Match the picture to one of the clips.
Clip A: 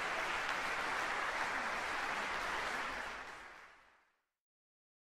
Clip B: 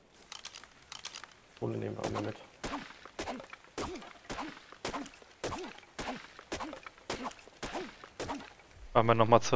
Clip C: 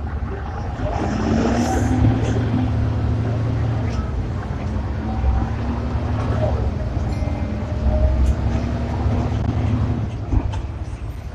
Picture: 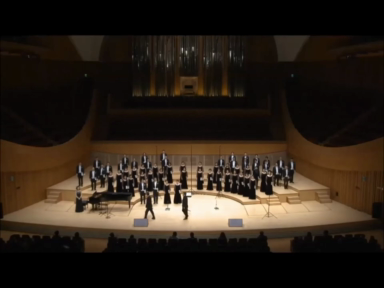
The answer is A